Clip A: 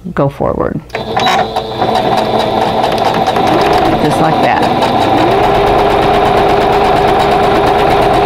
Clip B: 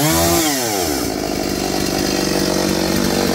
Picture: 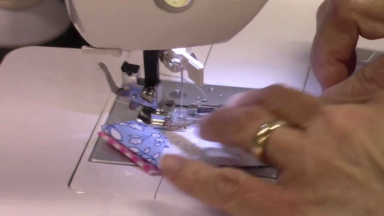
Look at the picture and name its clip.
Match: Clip A